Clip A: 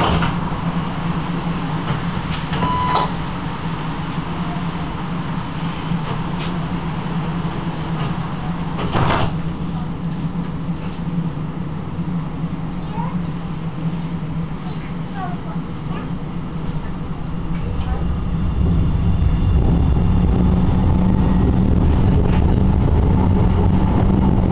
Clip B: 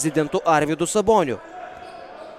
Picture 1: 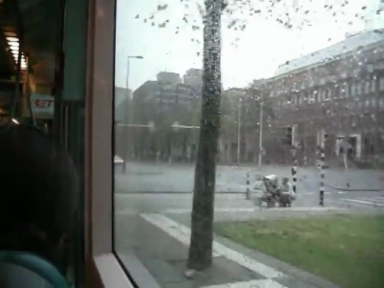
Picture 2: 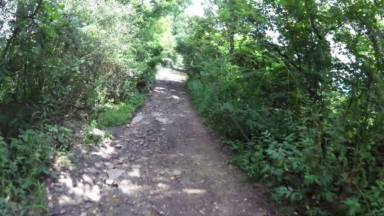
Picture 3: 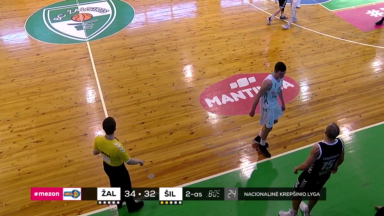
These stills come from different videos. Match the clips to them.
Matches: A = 1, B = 3